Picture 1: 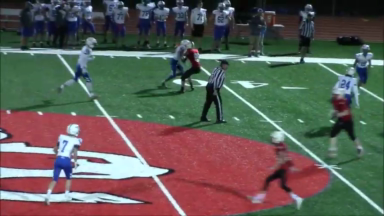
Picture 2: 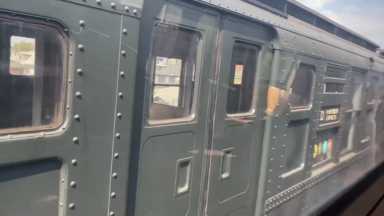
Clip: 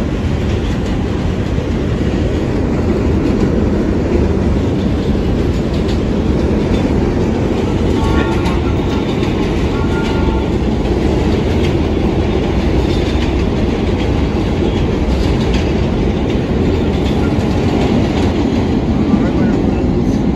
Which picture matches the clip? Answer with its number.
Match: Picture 2